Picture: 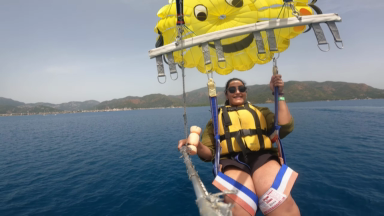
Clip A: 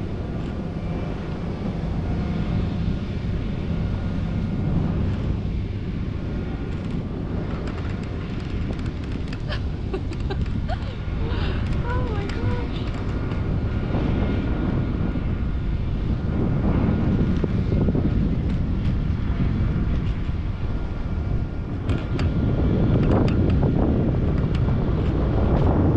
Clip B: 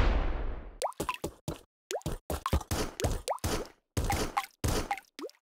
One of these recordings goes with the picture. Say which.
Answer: A